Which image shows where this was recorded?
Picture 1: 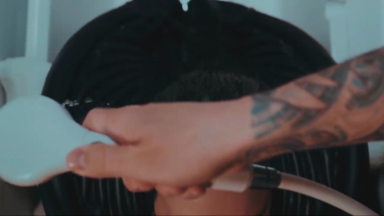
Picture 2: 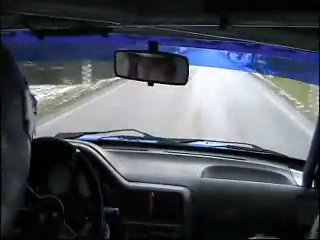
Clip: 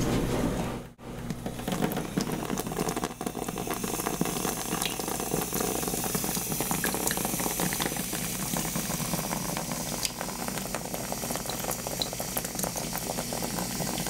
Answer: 1